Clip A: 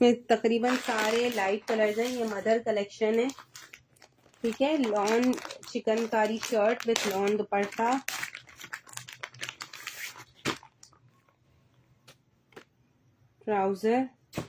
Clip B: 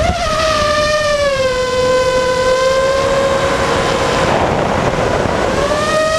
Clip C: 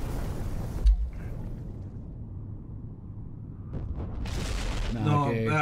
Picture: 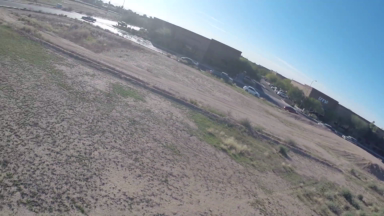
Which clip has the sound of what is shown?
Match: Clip B